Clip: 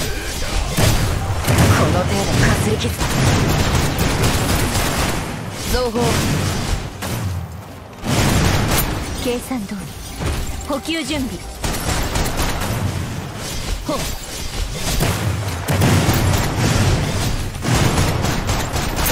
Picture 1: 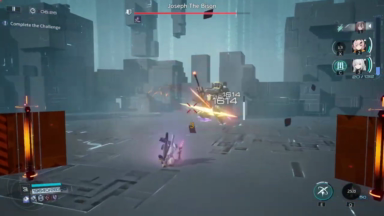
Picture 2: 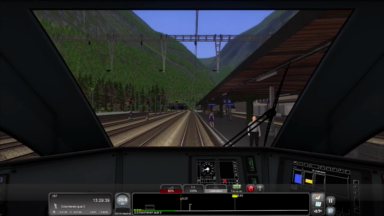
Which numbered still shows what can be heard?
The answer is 1